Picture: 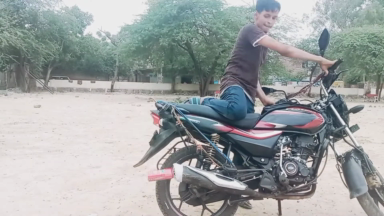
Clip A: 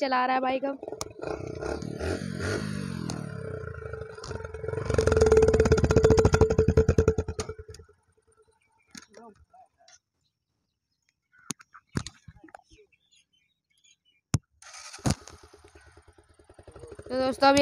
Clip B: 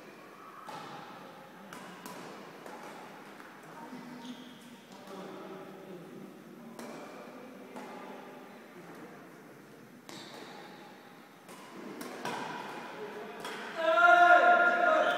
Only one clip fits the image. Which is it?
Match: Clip A